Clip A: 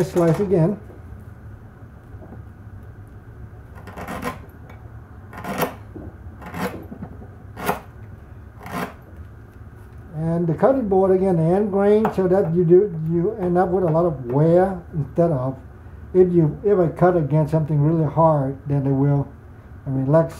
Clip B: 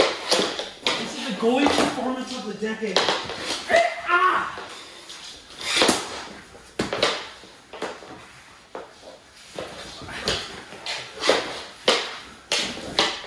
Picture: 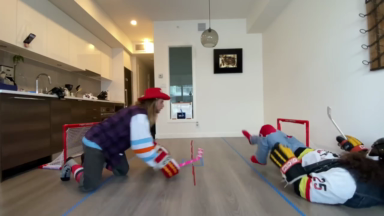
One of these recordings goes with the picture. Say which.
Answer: B